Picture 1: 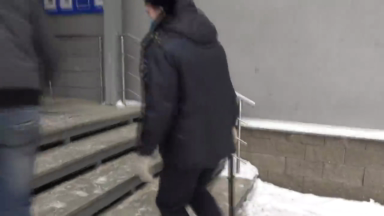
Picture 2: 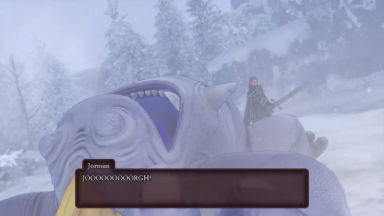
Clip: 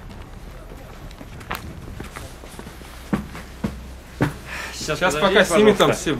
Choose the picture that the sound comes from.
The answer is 1